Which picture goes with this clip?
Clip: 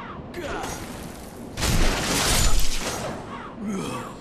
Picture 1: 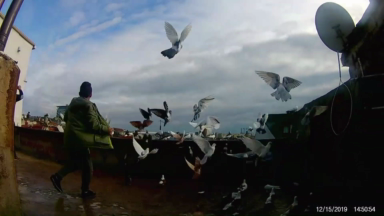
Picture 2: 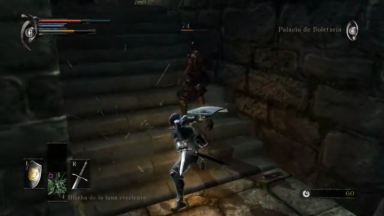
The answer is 2